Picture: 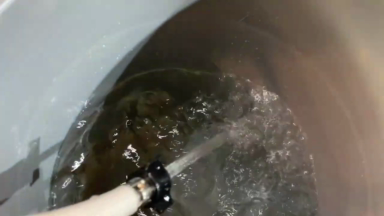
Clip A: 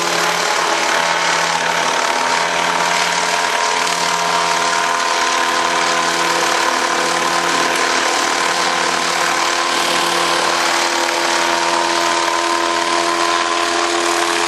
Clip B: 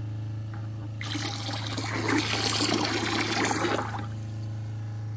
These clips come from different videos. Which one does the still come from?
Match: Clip B